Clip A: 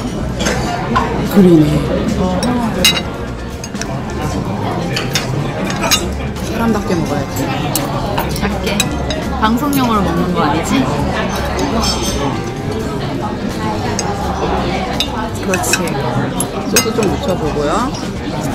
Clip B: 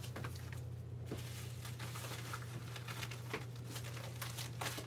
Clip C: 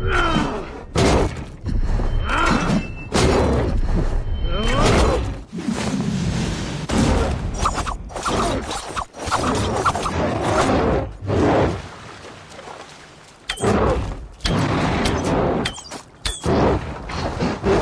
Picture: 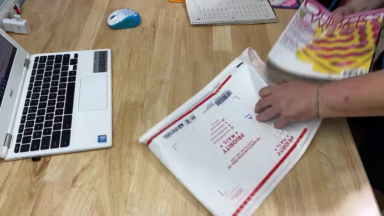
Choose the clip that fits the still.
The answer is B